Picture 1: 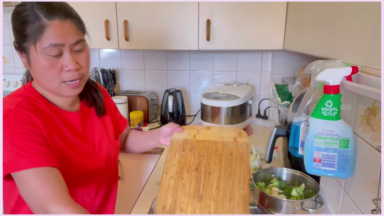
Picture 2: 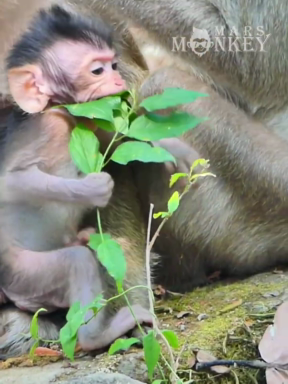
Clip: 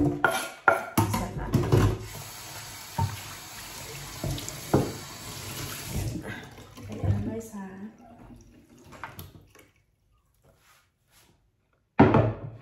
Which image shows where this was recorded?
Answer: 1